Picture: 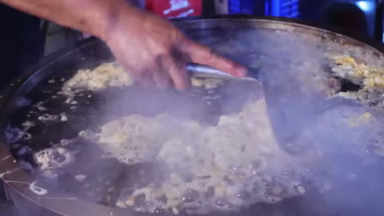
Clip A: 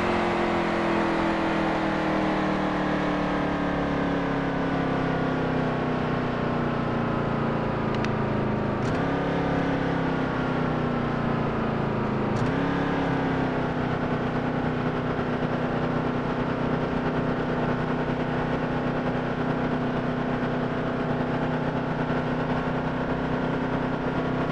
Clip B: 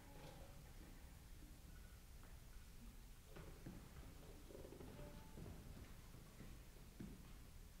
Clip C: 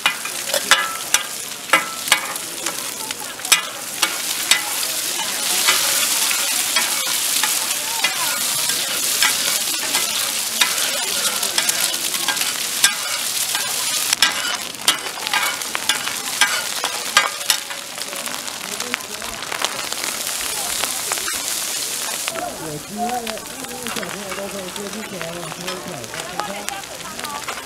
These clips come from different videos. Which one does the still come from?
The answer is C